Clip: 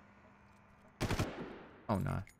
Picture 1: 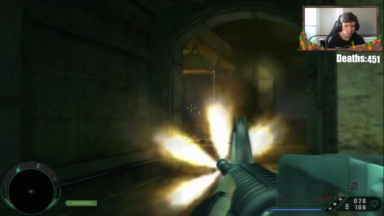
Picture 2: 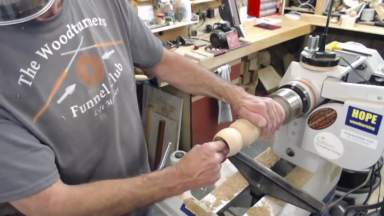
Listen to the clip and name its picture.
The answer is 1